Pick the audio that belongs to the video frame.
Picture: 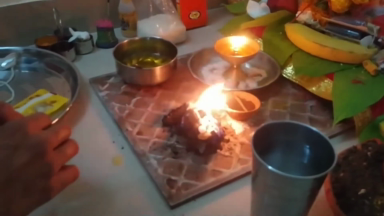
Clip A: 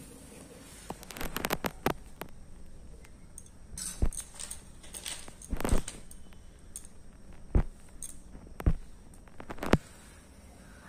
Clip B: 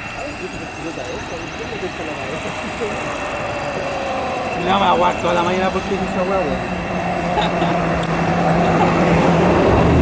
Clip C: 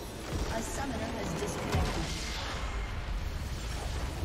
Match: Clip A